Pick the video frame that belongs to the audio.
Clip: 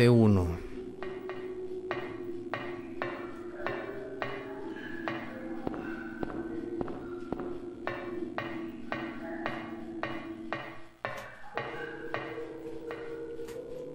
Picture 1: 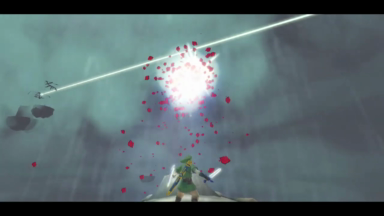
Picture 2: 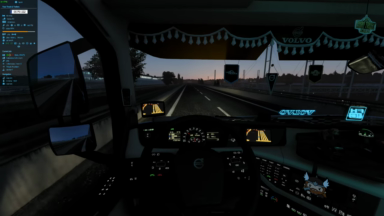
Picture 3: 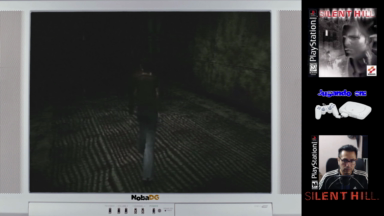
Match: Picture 3